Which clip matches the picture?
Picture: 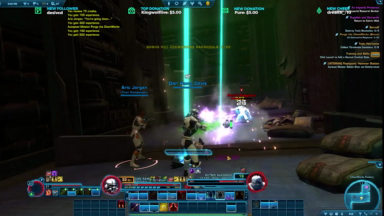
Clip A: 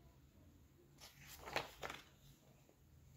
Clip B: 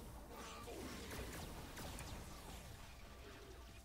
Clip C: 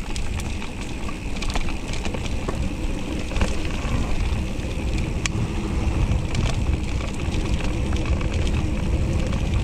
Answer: B